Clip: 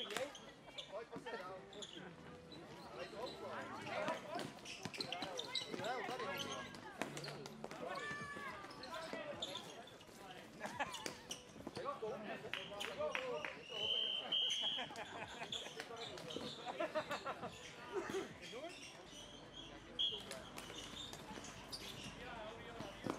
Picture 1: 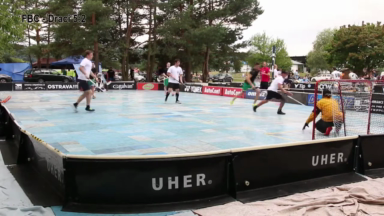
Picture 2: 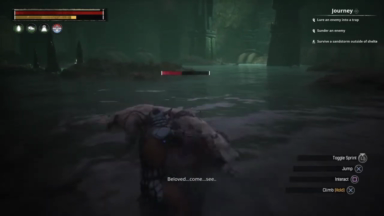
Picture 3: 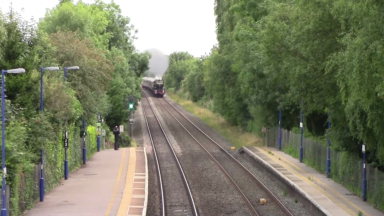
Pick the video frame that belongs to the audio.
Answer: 1